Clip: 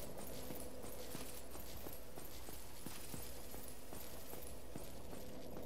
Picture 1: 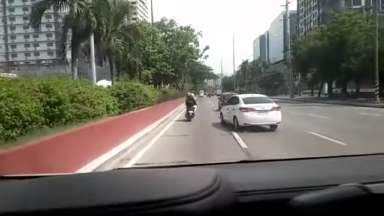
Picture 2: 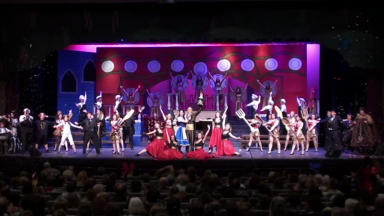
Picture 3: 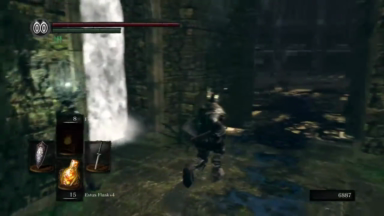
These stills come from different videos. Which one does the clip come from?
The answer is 3